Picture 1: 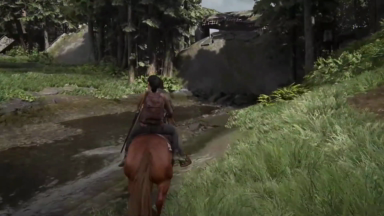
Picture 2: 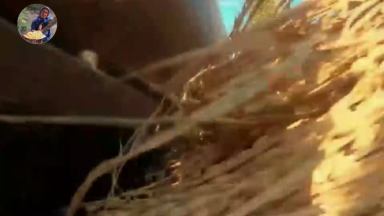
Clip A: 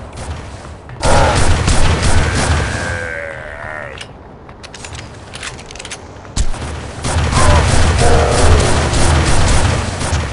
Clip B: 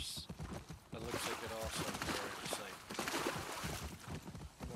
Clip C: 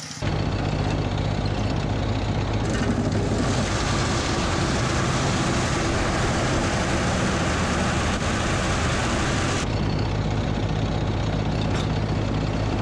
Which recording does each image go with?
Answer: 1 B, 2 C